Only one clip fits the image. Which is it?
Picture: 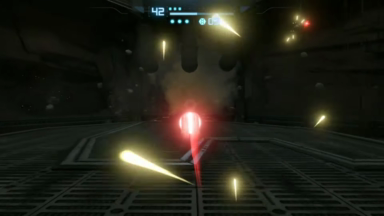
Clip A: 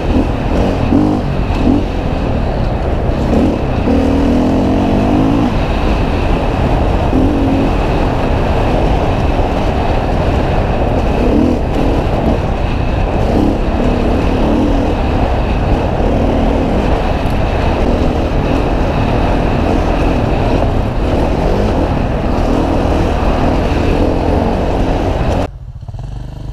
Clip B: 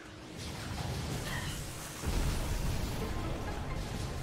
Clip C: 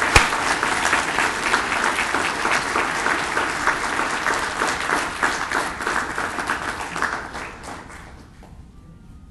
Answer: B